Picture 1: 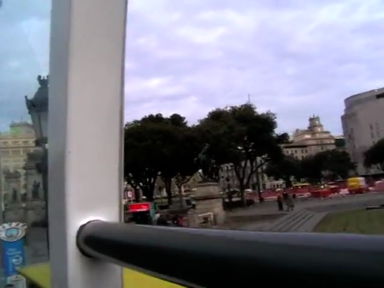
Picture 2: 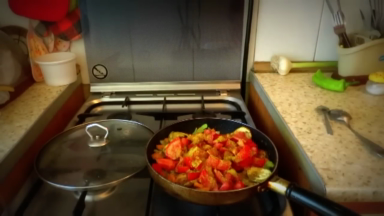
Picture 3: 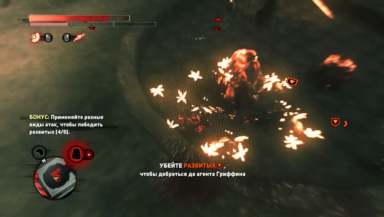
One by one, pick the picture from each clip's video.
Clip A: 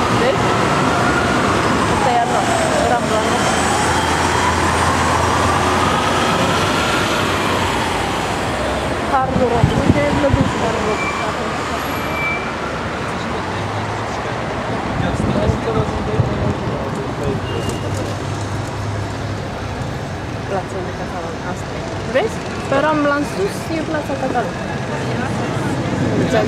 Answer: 1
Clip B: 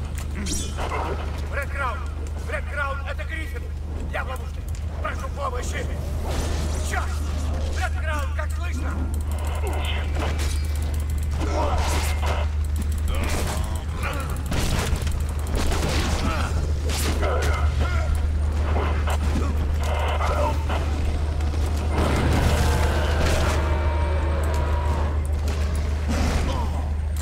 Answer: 3